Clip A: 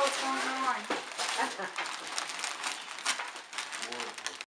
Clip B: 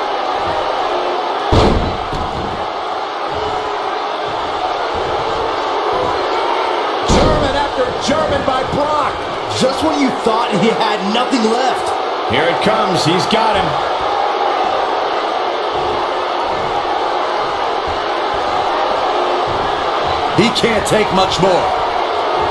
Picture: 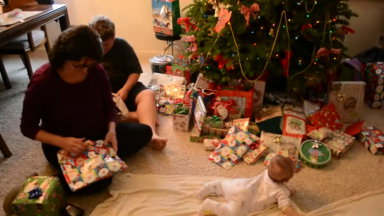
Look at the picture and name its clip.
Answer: A